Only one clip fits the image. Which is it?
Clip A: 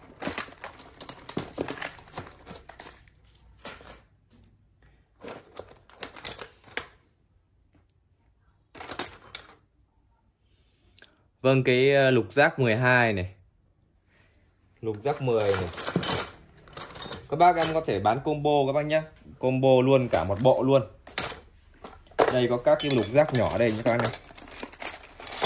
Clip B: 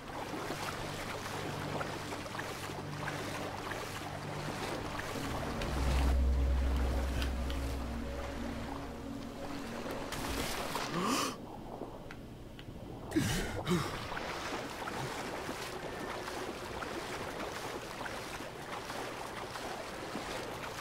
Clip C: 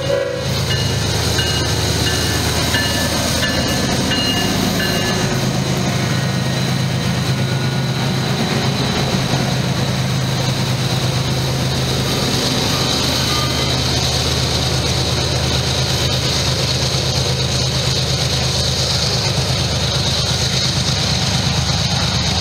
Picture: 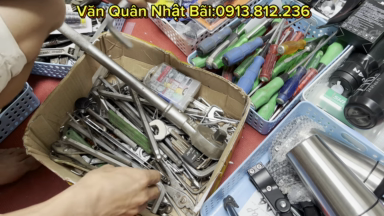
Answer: A